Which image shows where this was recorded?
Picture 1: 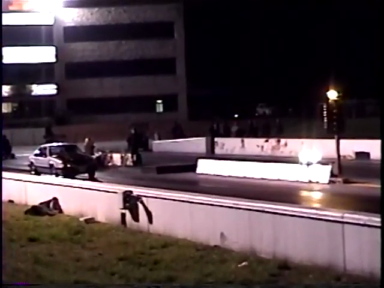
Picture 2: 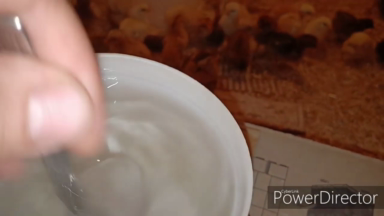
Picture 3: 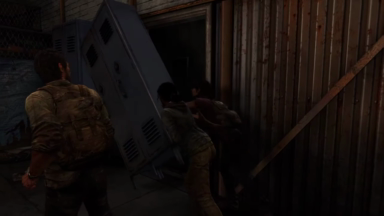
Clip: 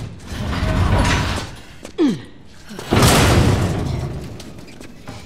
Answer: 3